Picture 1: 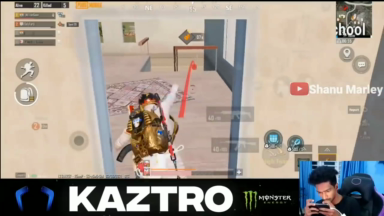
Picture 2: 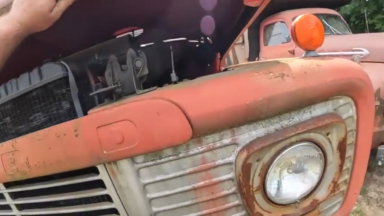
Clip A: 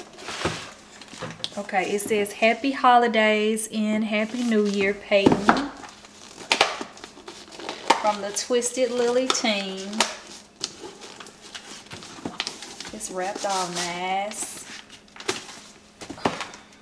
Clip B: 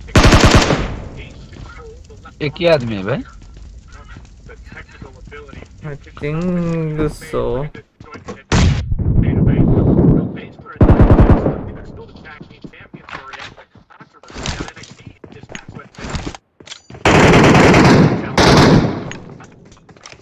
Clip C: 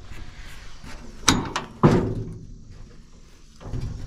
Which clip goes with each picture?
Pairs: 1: B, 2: C